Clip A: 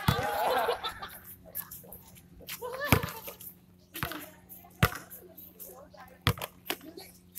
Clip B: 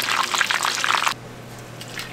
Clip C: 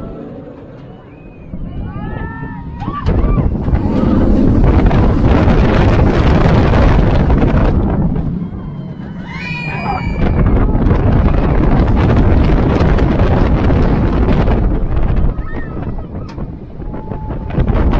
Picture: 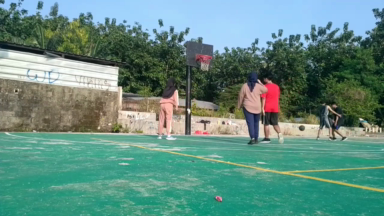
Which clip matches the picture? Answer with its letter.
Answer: A